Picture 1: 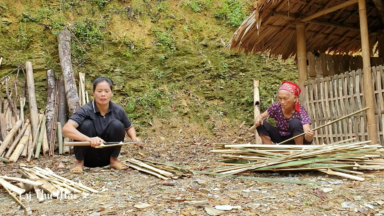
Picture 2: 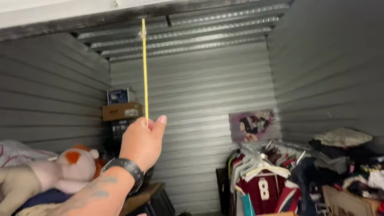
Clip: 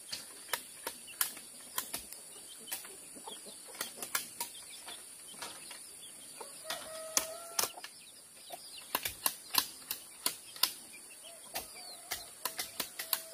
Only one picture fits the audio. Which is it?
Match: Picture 1